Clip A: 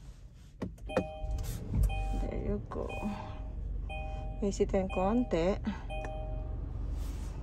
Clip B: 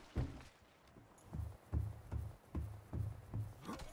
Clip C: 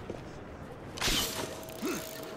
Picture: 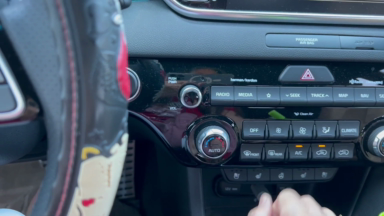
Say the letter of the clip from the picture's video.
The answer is A